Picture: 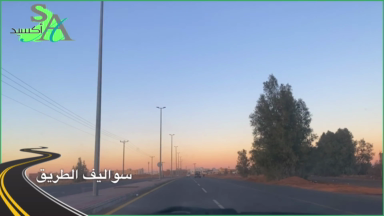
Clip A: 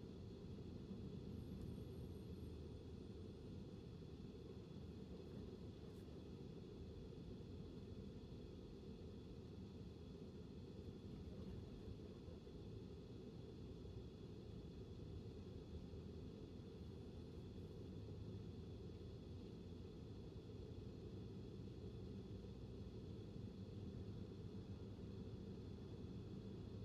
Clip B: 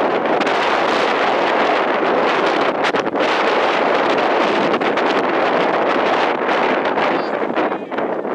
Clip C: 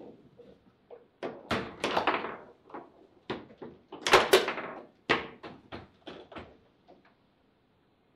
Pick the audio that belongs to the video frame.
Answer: A